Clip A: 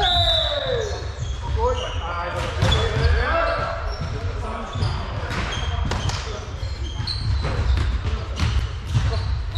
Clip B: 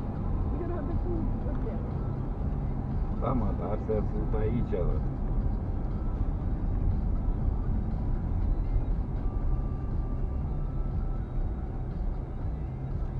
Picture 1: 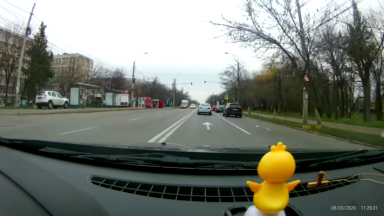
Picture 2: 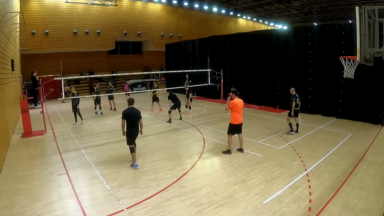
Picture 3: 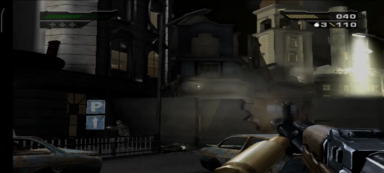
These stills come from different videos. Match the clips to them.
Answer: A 2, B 1